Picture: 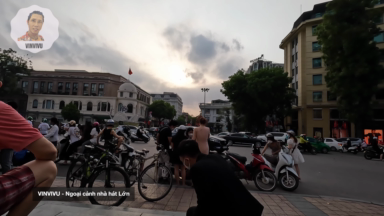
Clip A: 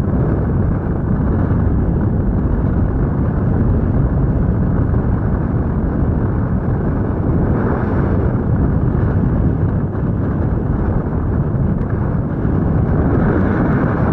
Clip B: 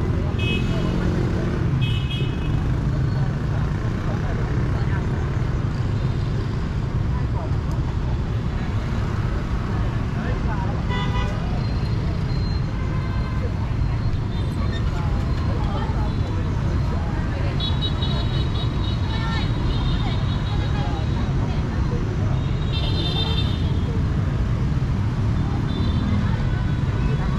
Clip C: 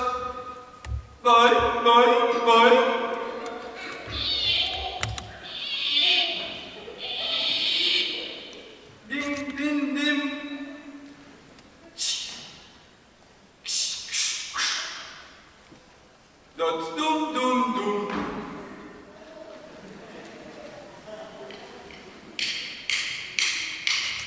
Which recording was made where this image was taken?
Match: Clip B